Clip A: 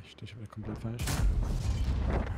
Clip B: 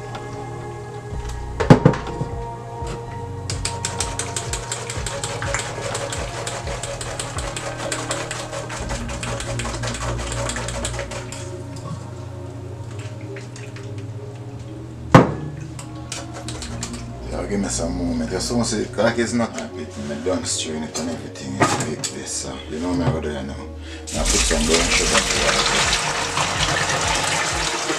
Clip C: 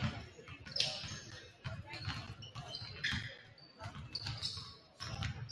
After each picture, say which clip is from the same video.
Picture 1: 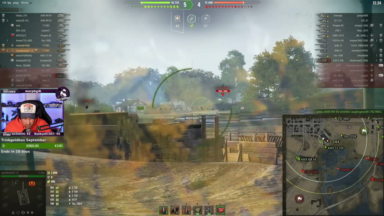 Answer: A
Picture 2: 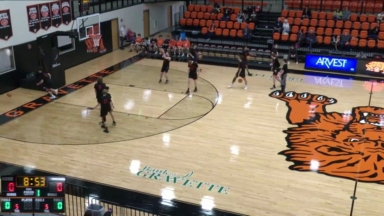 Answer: C